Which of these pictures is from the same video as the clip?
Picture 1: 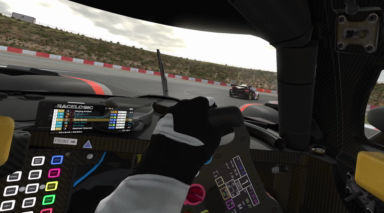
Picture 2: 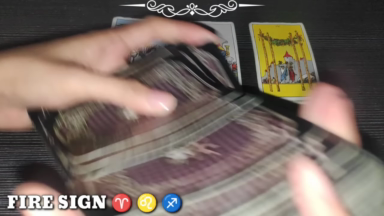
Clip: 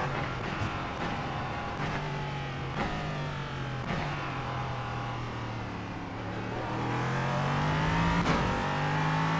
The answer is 1